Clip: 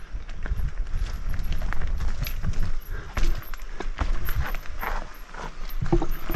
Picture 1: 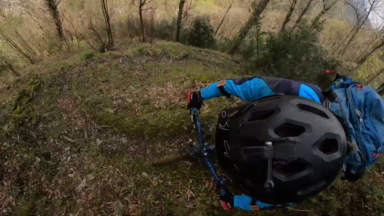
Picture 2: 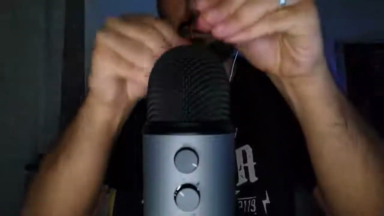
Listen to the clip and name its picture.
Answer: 1